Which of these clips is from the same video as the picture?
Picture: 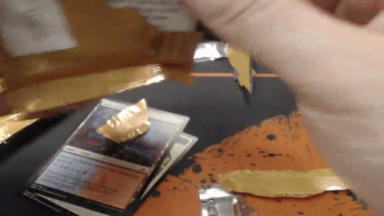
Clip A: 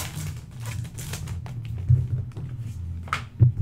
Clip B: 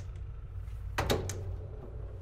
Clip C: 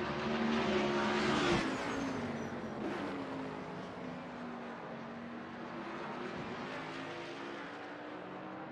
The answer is A